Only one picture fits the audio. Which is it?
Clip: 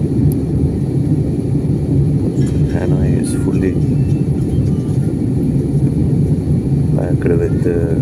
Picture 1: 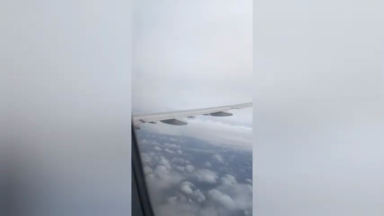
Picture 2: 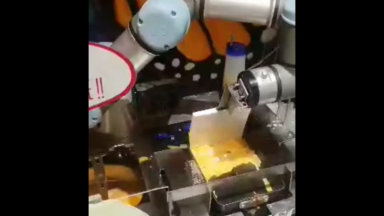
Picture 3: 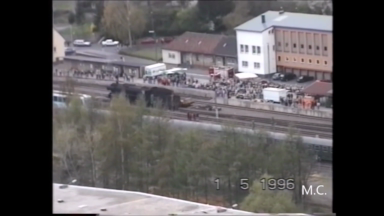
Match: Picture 1